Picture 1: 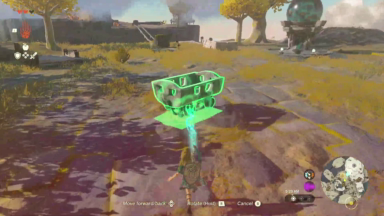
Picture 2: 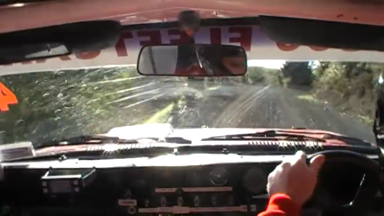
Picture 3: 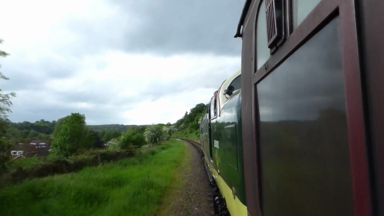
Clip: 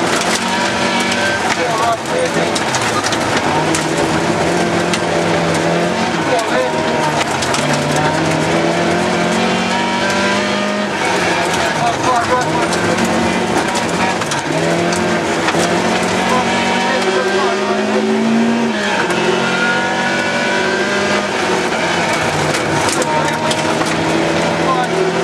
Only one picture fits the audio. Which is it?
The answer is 2